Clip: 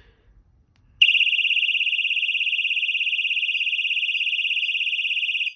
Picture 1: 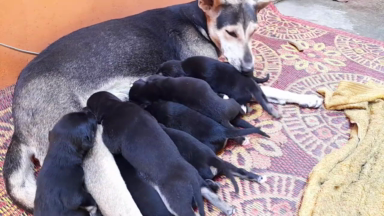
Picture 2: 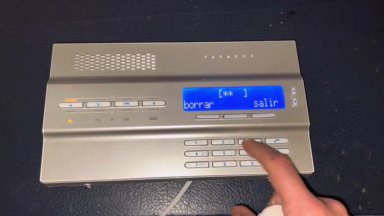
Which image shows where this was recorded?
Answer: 2